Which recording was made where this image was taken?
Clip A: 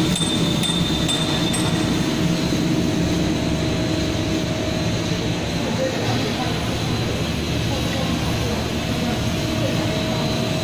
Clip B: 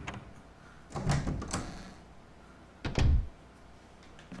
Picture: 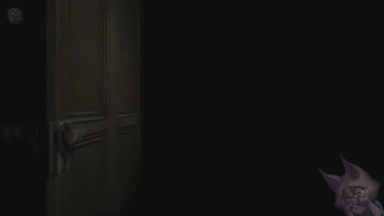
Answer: B